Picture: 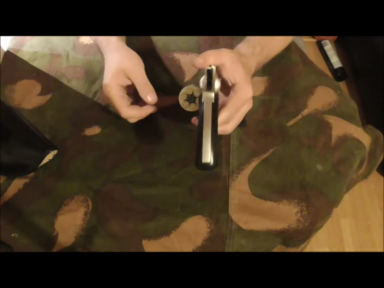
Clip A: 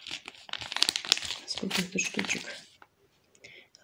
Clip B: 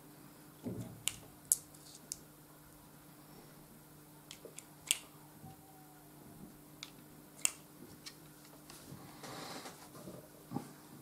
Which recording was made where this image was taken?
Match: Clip B